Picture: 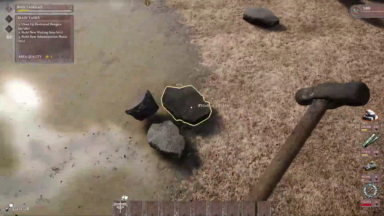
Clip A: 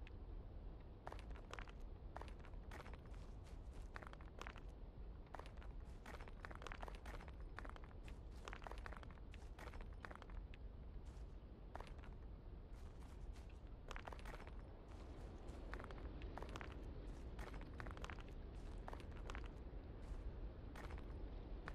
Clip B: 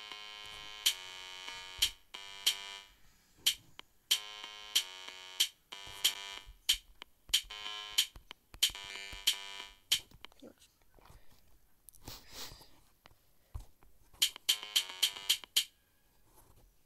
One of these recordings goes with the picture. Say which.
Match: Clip A